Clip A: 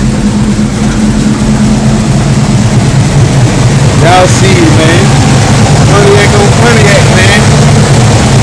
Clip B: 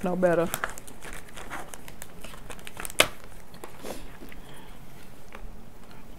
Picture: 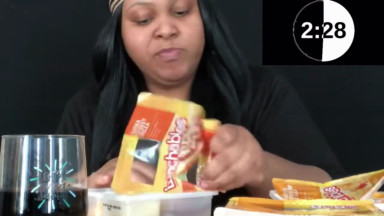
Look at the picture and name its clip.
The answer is B